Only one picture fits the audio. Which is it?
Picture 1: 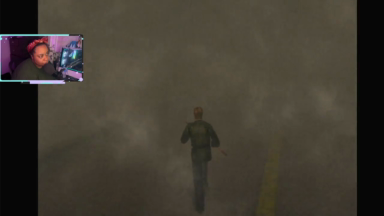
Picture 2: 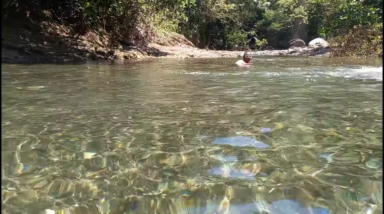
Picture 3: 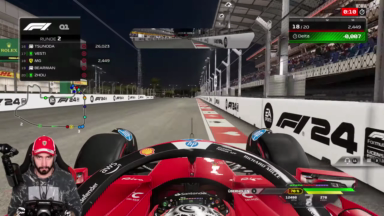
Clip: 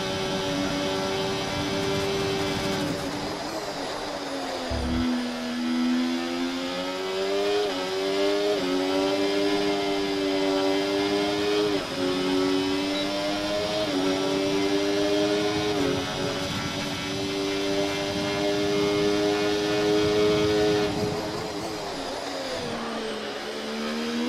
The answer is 3